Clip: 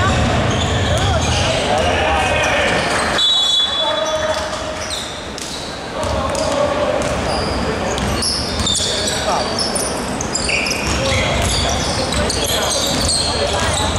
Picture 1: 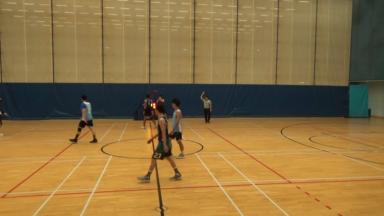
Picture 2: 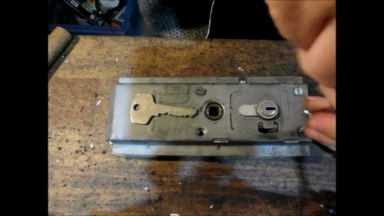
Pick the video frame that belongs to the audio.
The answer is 1